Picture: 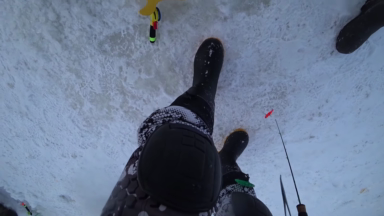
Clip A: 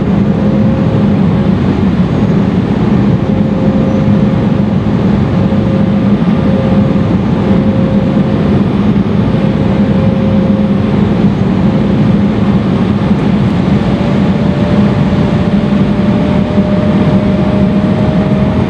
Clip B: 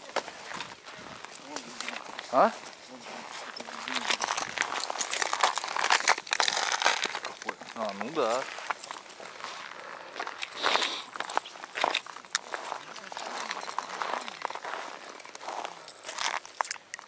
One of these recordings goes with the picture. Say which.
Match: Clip B